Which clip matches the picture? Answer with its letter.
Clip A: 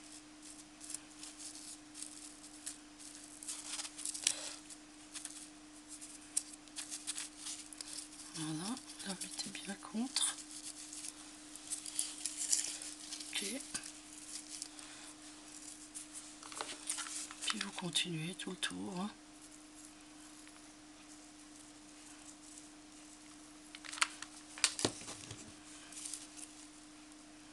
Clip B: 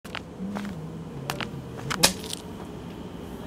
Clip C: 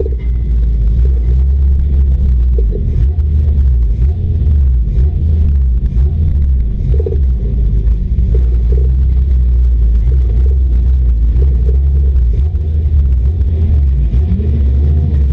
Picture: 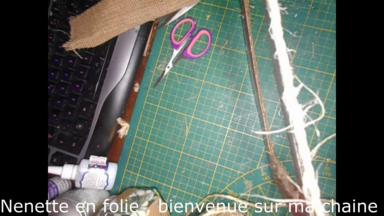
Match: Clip A